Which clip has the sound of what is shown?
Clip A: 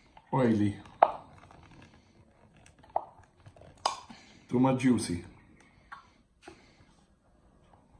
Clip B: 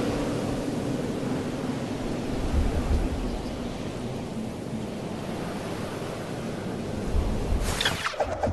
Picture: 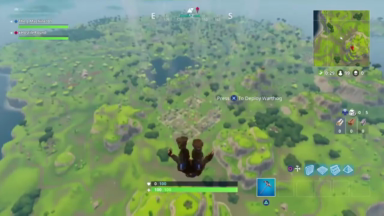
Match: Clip B